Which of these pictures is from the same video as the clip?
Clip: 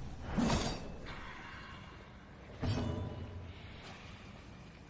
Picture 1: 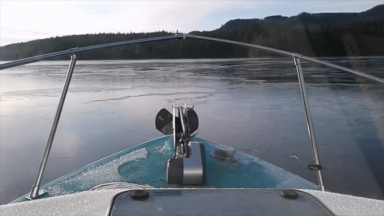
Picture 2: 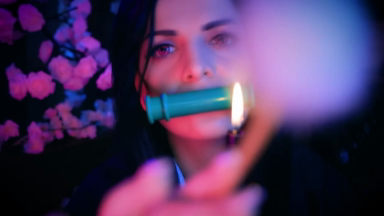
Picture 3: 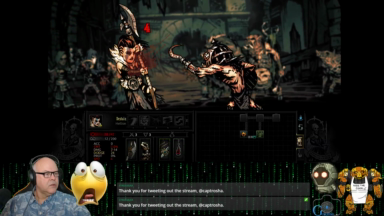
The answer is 3